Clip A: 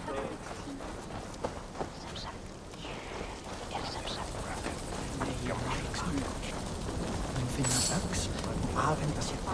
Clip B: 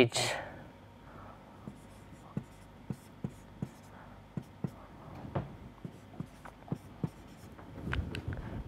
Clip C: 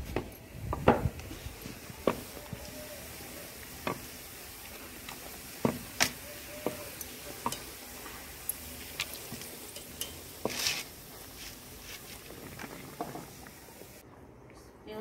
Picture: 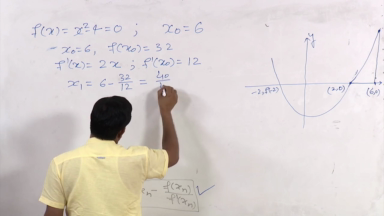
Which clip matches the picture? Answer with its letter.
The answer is B